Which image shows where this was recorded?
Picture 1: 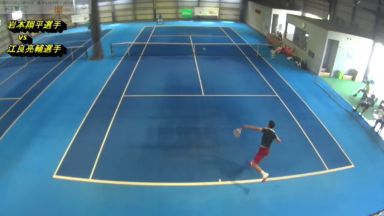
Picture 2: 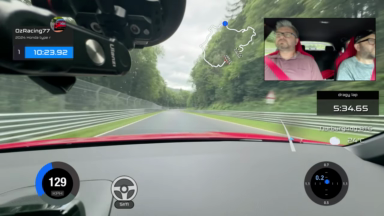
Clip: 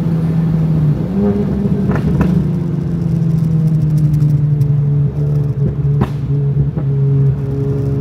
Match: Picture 2